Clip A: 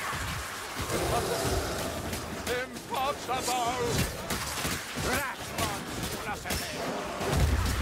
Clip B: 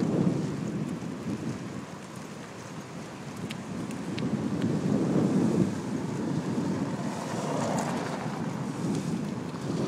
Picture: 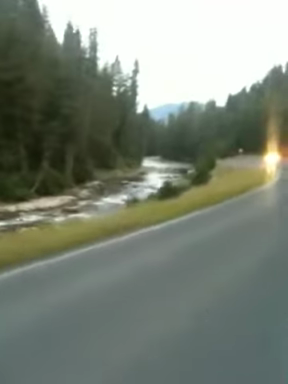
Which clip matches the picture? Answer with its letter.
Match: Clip B